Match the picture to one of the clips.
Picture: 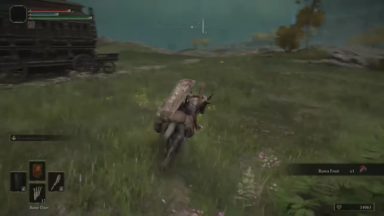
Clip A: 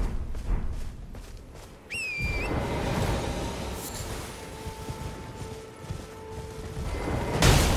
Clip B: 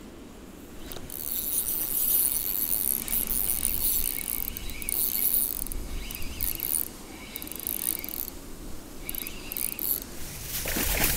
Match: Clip A